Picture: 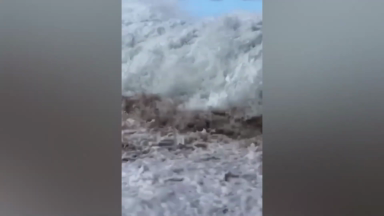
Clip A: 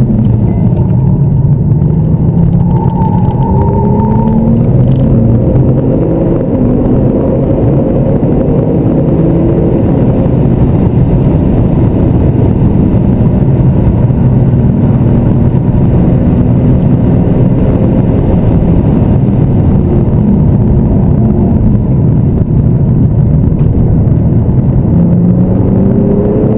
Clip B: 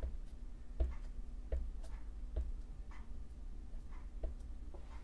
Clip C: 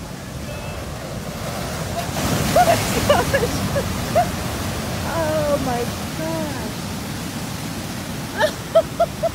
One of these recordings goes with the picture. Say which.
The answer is C